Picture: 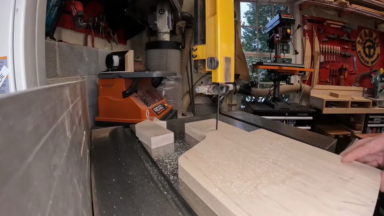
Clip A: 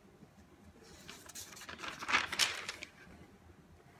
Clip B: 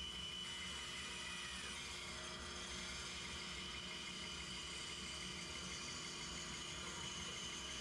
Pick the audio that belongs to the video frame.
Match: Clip B